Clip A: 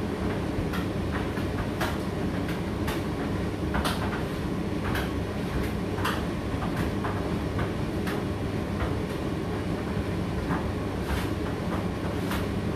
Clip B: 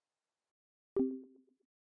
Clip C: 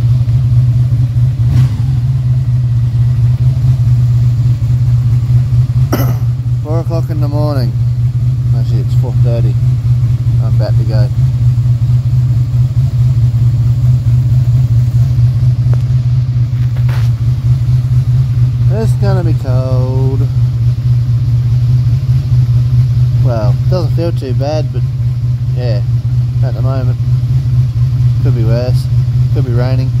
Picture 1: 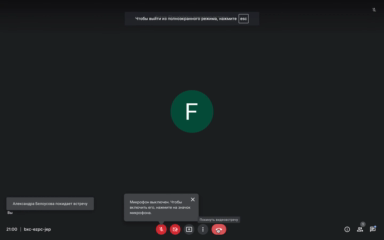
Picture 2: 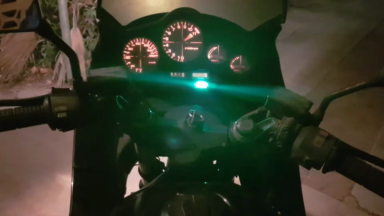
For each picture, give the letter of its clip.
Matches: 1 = B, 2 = C